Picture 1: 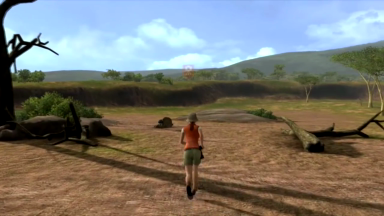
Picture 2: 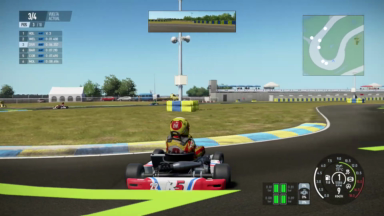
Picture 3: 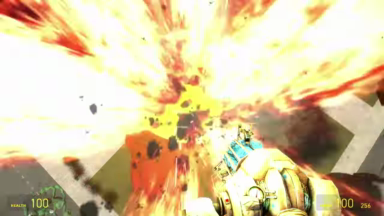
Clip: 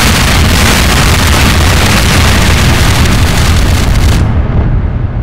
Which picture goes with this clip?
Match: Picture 3